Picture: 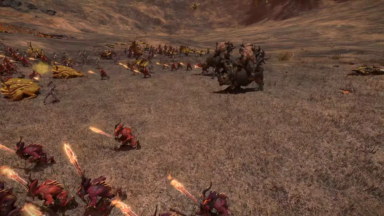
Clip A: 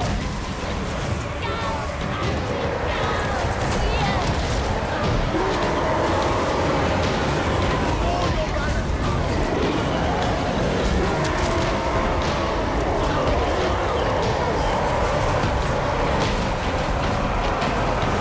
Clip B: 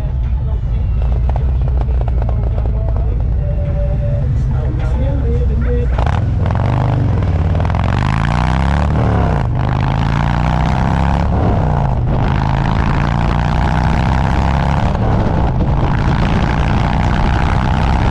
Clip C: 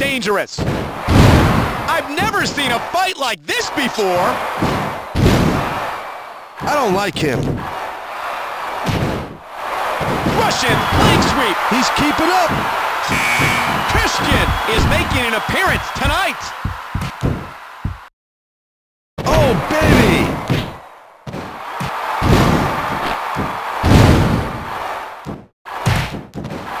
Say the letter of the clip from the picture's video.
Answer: A